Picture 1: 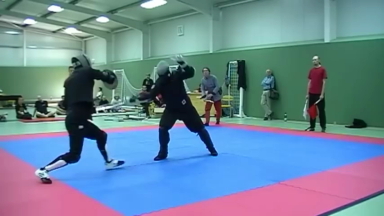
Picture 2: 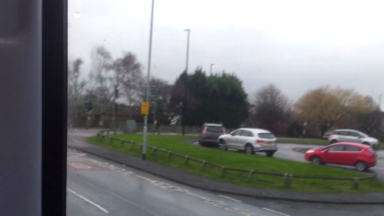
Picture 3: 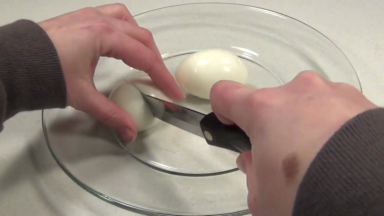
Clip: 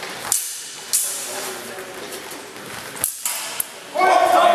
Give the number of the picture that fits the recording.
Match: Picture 1